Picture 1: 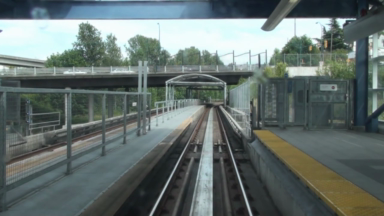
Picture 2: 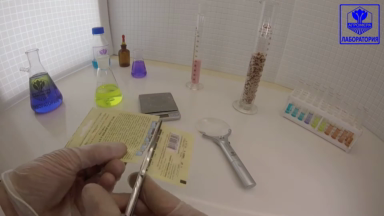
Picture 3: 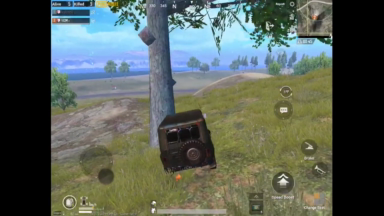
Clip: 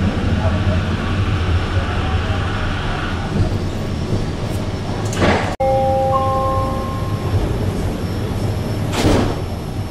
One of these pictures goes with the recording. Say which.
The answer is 1